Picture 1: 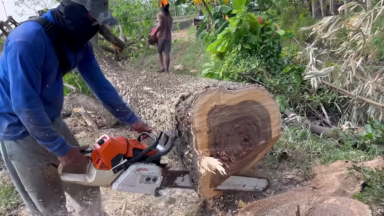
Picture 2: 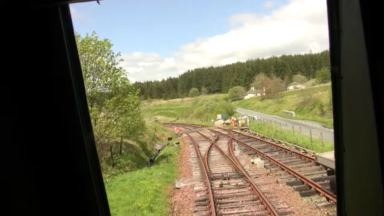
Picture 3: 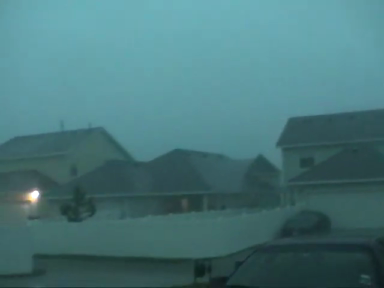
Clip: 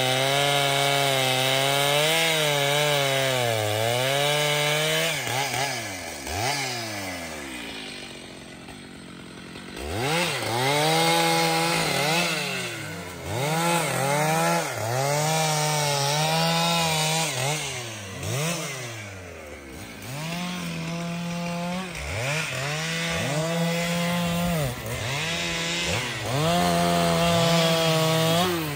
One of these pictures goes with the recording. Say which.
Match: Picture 1